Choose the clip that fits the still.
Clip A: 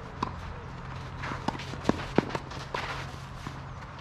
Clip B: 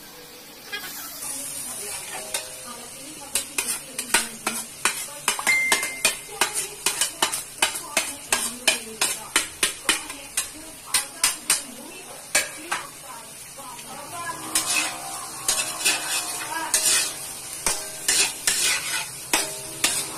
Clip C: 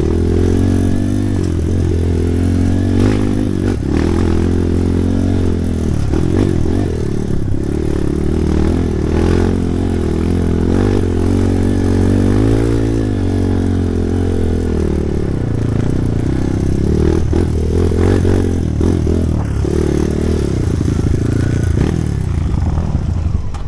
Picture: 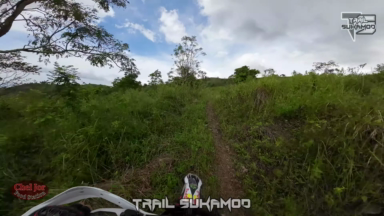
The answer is C